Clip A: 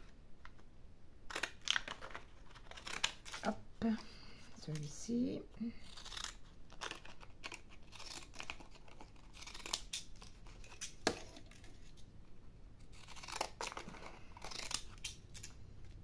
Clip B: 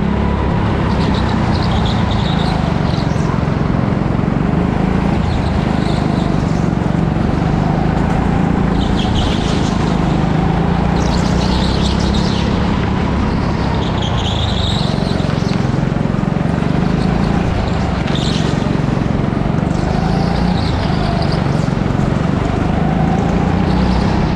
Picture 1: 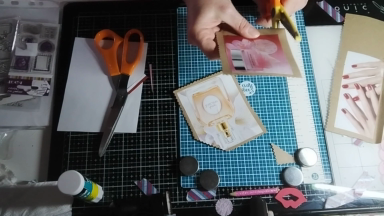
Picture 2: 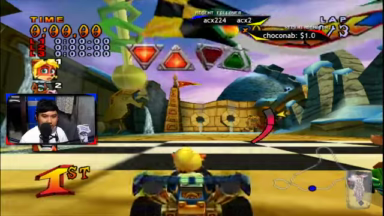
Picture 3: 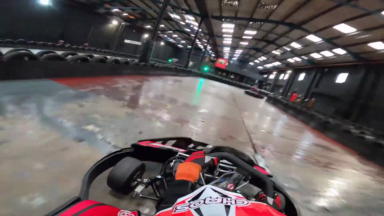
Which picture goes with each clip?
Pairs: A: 1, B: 3